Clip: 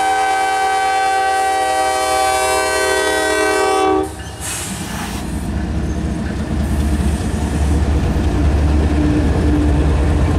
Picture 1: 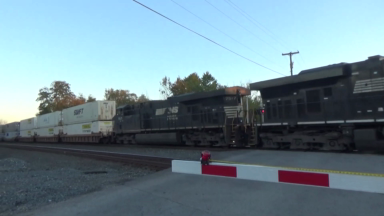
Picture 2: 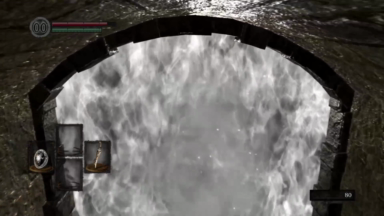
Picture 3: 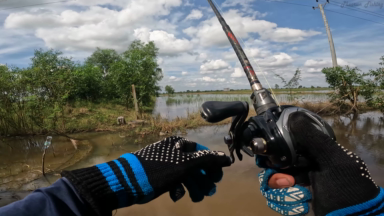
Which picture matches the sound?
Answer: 1